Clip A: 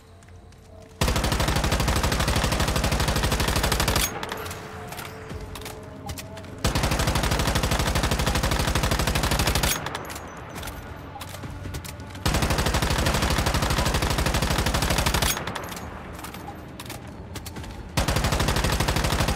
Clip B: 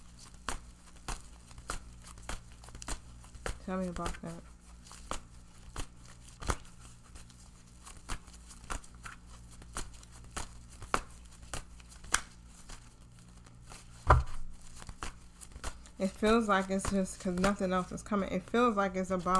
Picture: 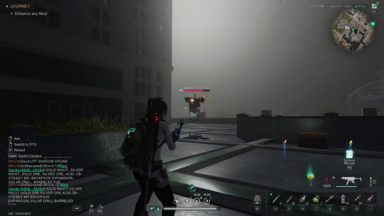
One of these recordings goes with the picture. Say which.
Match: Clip A